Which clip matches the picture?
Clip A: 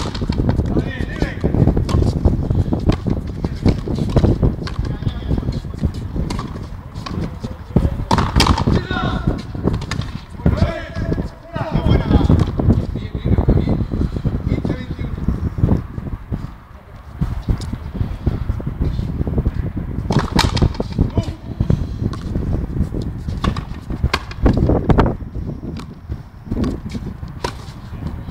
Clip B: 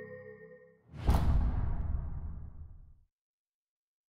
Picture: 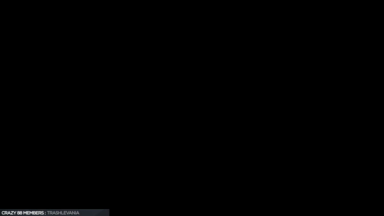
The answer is B